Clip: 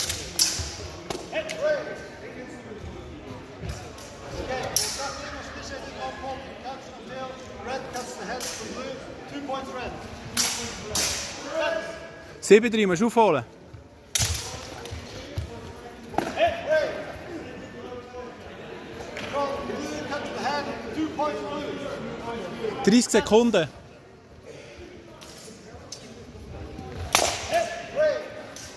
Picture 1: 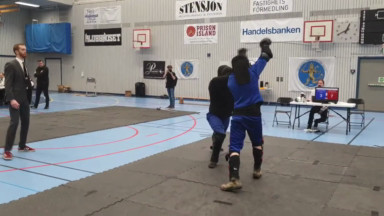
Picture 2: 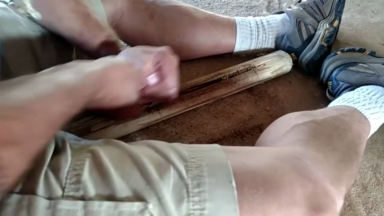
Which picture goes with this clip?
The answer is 1